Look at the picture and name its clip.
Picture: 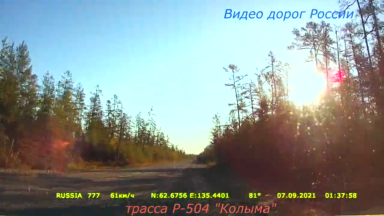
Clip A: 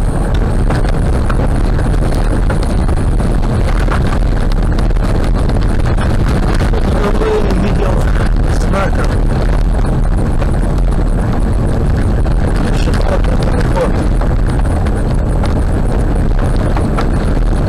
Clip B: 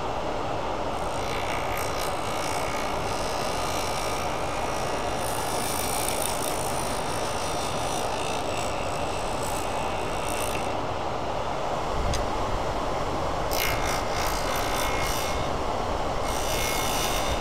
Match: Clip A